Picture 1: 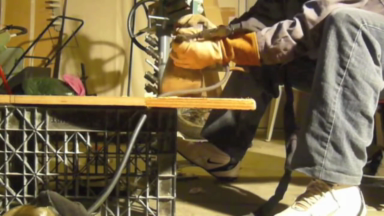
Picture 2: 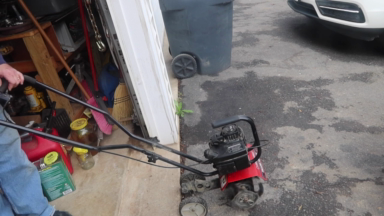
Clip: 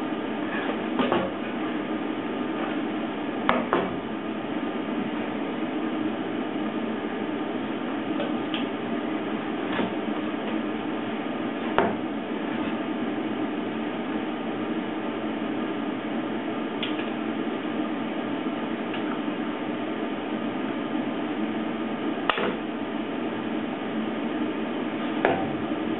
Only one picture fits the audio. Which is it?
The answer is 1